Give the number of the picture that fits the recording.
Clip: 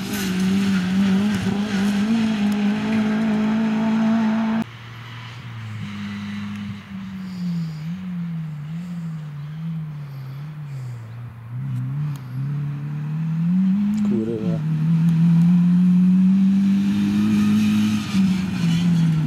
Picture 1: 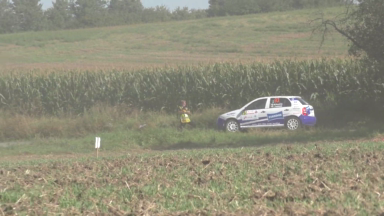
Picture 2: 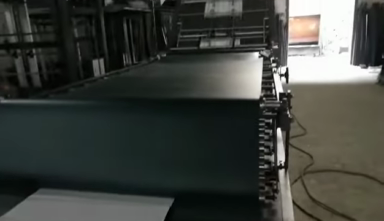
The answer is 1